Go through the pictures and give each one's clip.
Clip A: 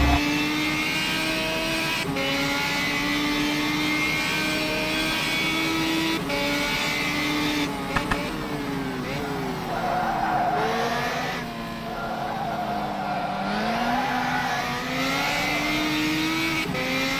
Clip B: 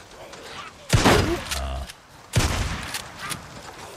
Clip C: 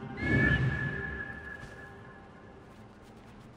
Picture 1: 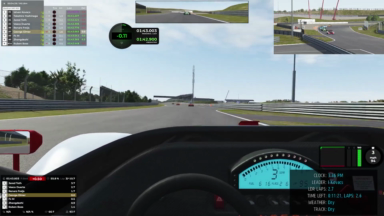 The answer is A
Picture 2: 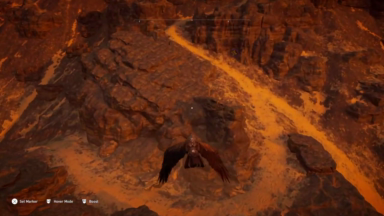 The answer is C